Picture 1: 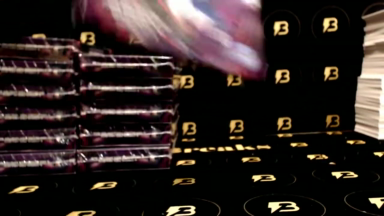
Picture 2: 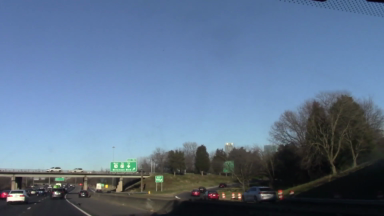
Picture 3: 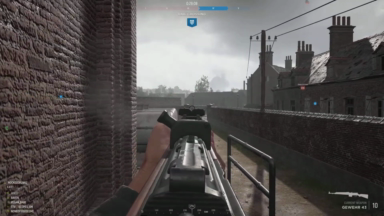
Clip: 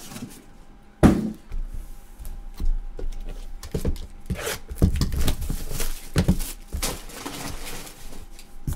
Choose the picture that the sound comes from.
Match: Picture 1